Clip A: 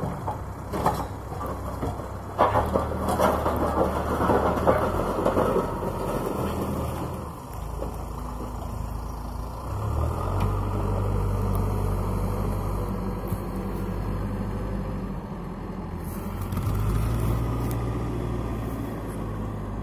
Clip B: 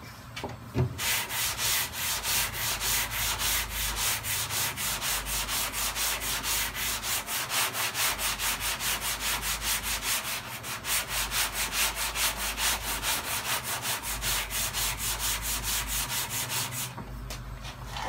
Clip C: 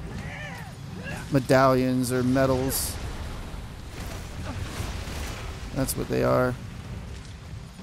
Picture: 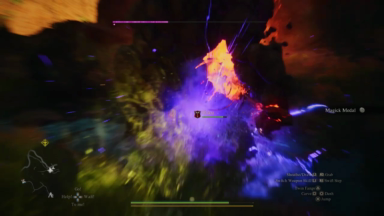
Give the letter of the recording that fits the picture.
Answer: C